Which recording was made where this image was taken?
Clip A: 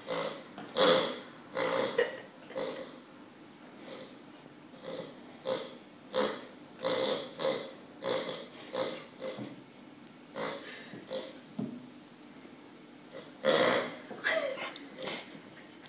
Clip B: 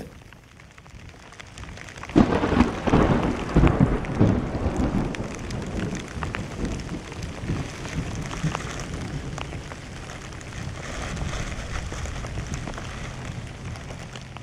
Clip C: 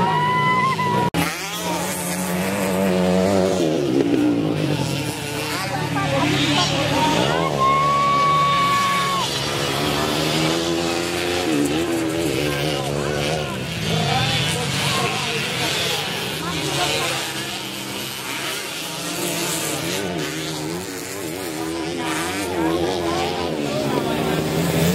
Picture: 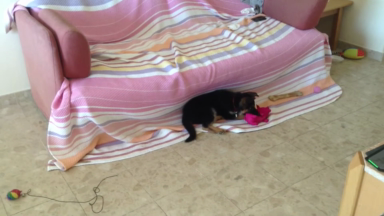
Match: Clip A